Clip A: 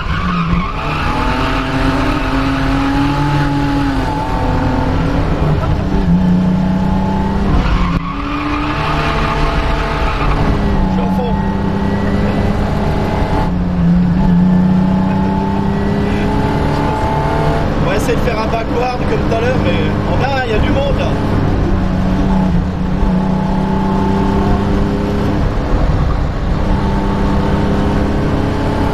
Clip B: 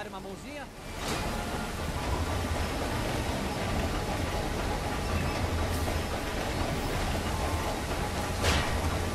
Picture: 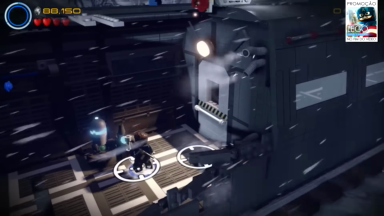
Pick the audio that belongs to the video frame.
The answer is B